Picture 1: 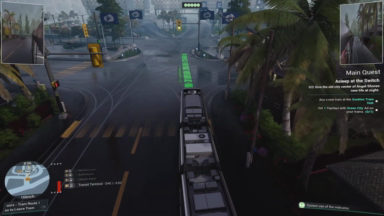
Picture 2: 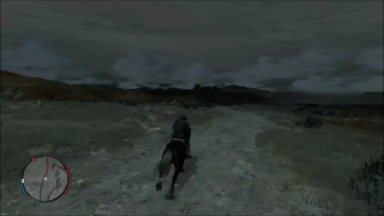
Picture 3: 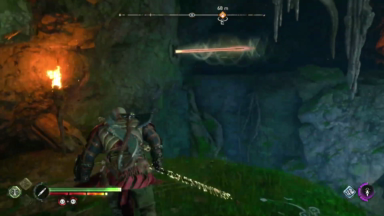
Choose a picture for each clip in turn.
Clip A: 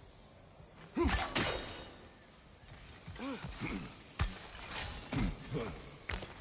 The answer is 3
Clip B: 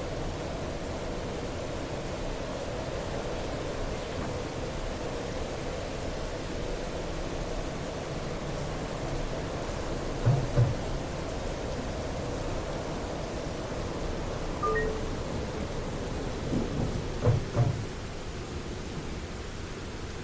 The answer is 1